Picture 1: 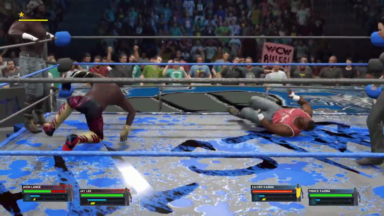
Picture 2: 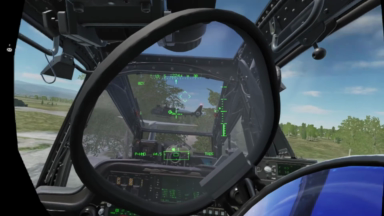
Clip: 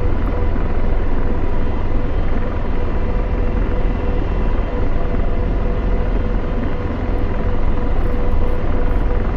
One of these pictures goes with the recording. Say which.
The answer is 2